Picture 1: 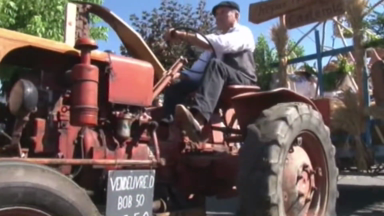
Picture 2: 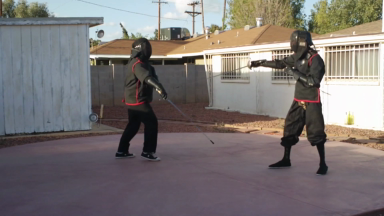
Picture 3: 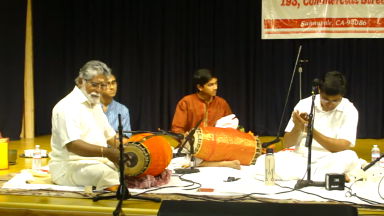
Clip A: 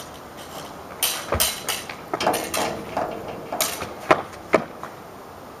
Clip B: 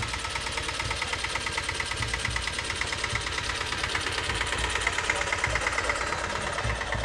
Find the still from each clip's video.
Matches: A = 2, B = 1